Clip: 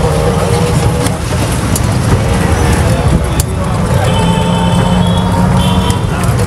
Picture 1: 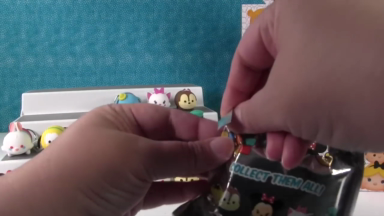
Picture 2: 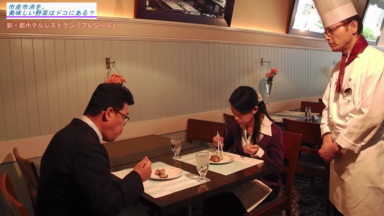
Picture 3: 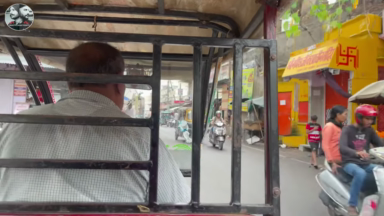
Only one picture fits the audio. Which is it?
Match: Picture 3